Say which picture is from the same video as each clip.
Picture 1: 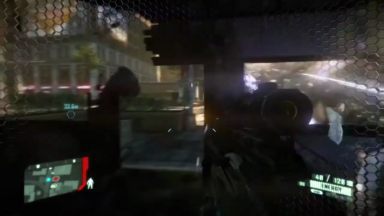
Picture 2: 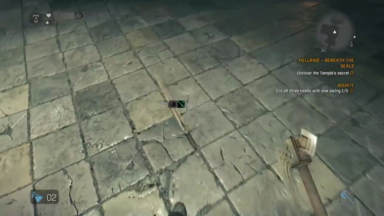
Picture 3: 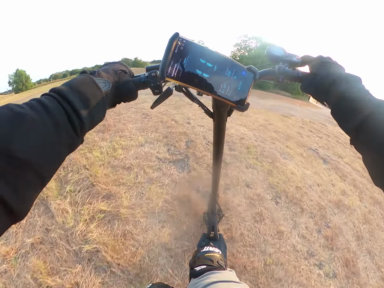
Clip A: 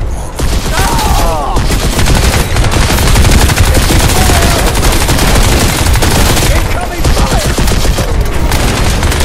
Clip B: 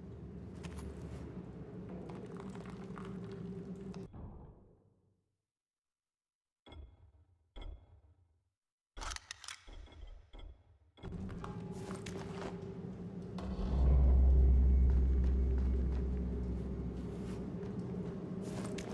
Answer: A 1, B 2